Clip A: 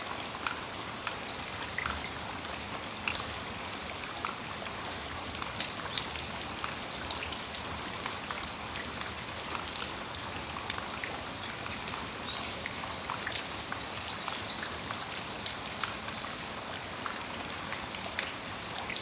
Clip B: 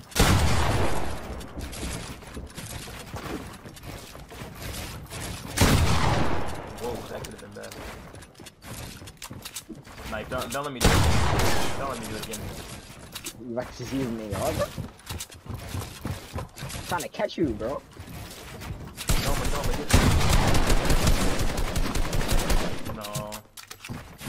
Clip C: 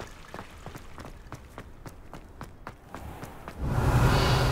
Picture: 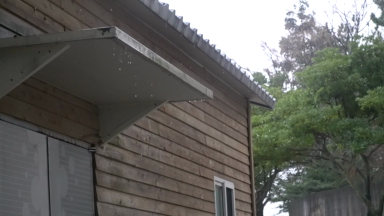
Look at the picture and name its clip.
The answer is A